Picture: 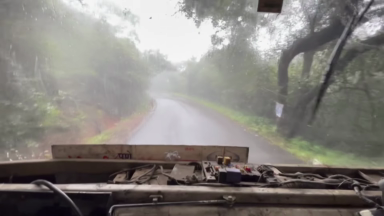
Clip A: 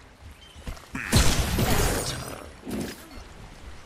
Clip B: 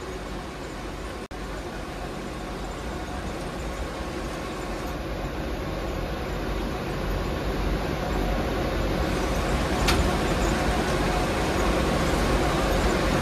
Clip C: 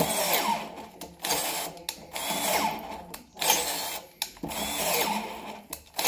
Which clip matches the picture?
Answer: B